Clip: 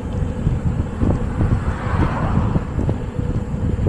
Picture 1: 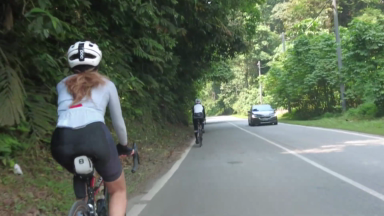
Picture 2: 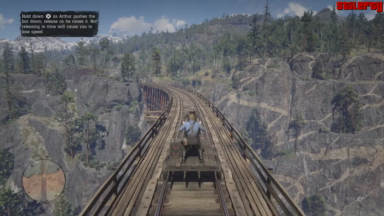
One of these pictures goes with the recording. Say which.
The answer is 1